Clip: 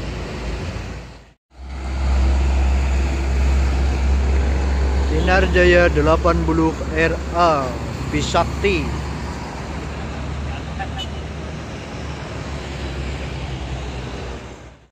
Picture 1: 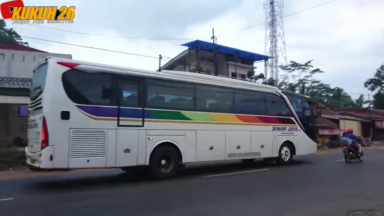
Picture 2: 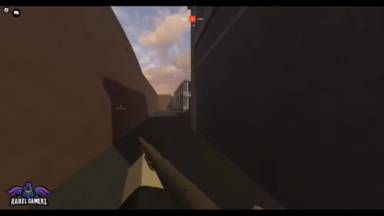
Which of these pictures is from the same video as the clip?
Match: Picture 1